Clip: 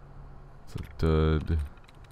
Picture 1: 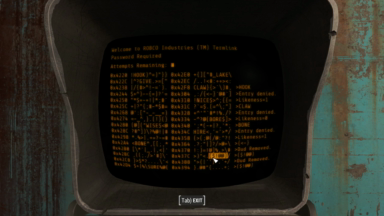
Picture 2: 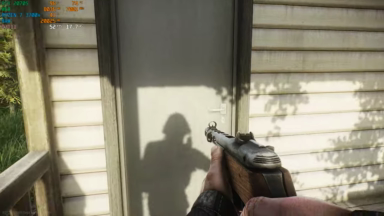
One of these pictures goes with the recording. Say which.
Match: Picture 1